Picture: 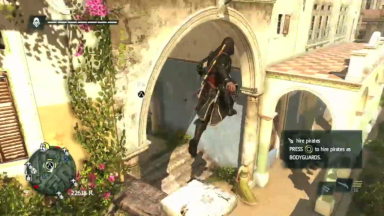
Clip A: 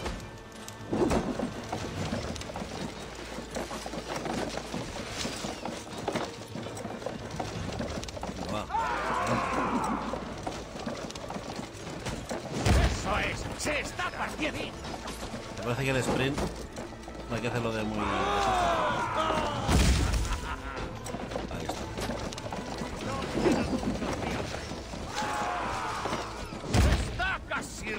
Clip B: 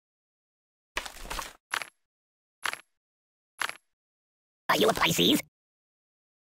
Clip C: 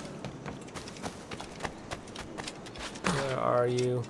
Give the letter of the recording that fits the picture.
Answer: C